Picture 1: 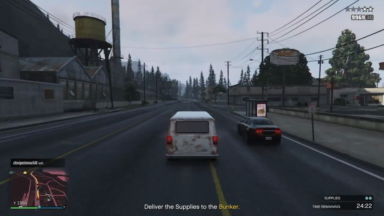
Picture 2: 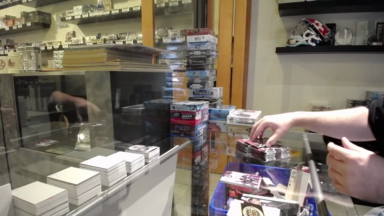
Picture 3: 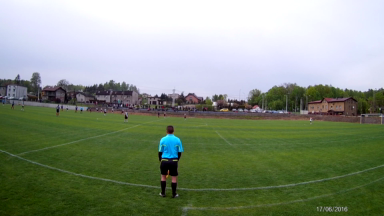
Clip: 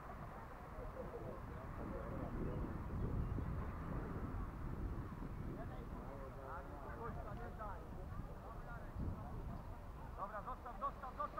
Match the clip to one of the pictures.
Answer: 3